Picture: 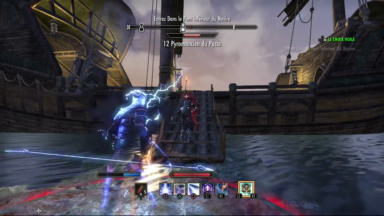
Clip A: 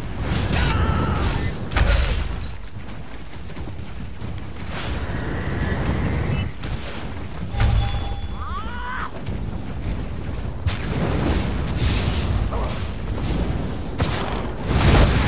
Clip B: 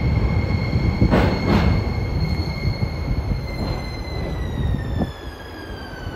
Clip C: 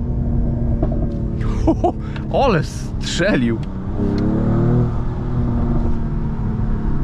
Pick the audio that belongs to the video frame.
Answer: A